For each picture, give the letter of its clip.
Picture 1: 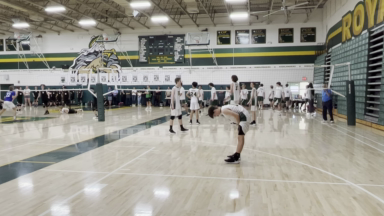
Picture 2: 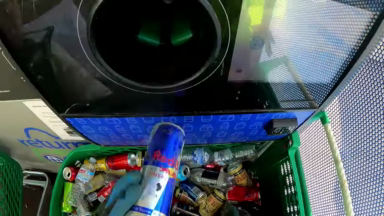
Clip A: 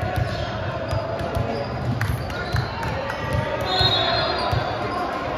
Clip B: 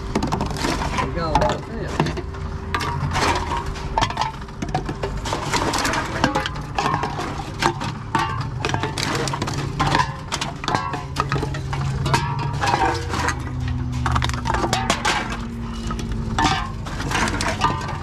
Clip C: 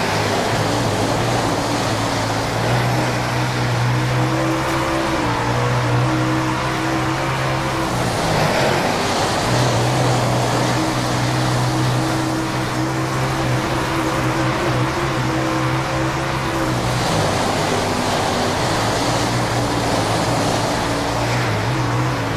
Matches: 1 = A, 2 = B